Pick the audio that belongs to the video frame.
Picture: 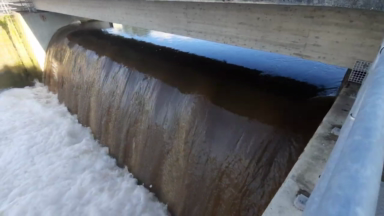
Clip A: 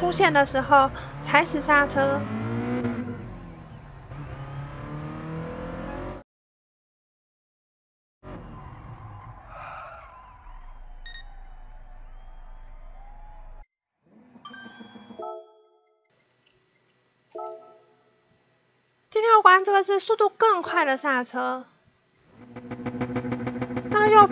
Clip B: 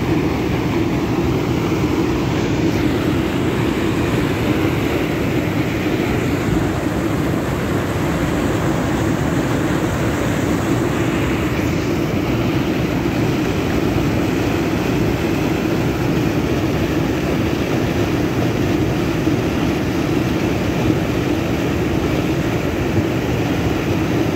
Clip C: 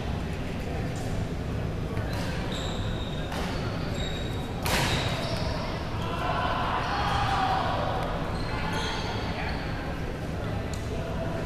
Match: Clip B